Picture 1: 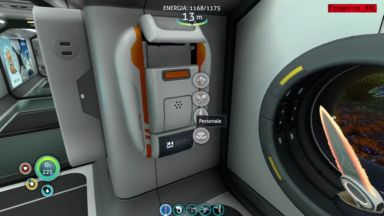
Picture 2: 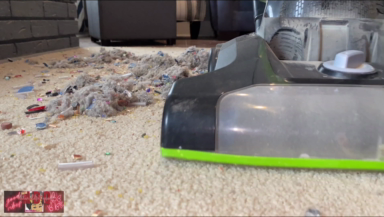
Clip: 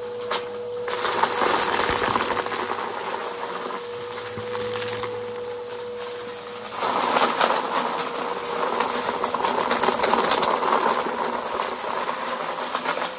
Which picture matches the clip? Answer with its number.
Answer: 2